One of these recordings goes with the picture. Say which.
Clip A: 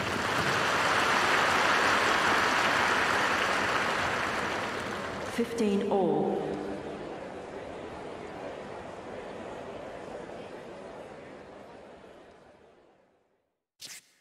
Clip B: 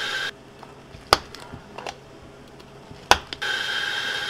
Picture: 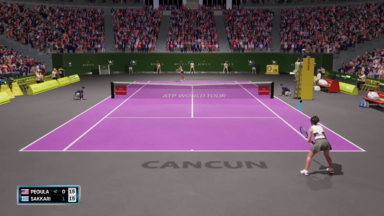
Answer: A